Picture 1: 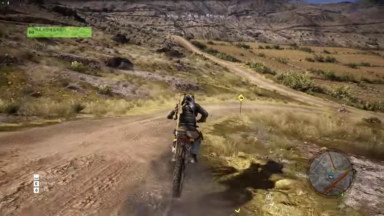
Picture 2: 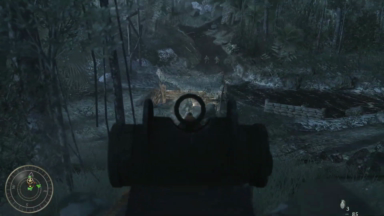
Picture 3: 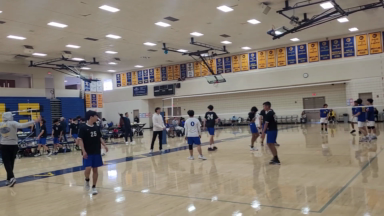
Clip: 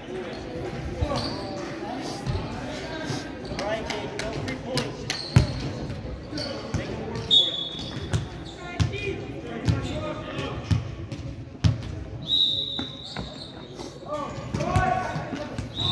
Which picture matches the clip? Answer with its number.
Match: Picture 3